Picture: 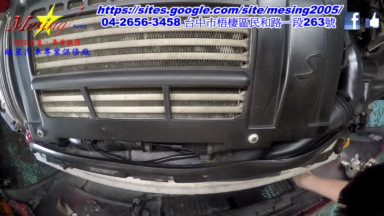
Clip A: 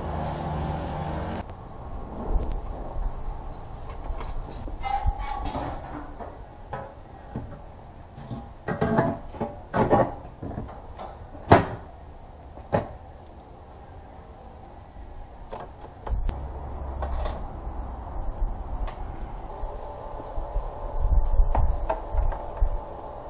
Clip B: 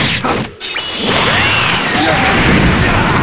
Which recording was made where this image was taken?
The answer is A